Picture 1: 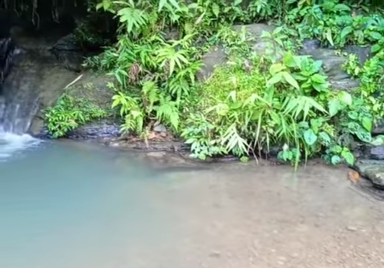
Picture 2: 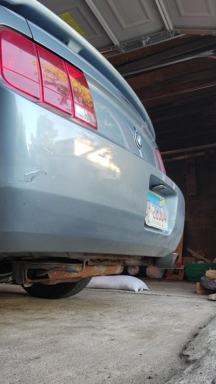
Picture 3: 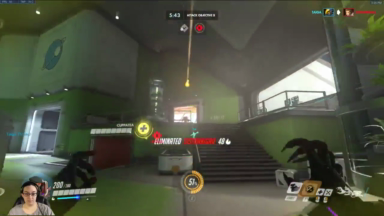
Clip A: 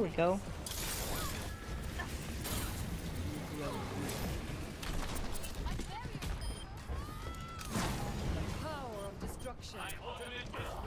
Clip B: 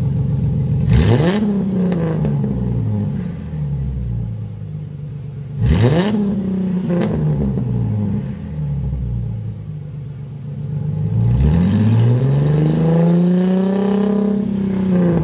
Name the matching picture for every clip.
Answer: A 3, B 2